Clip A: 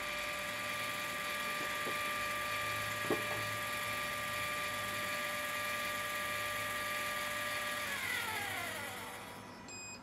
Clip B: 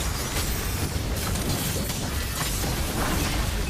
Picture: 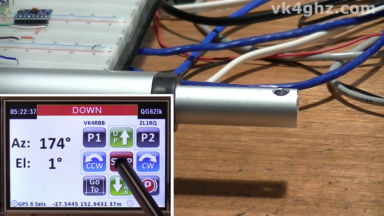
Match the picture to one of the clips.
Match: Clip A